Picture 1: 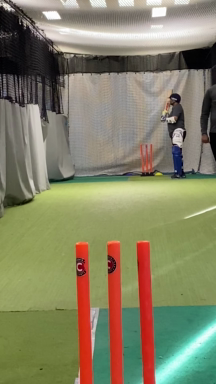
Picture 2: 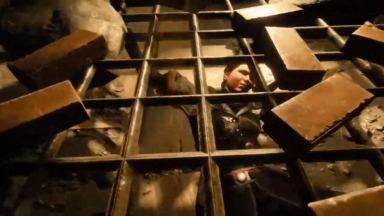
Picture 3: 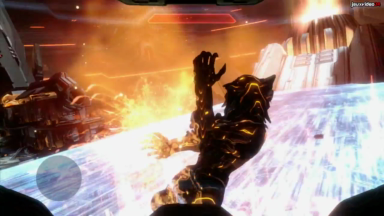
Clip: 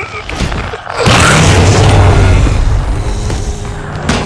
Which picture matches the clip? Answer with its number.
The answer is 3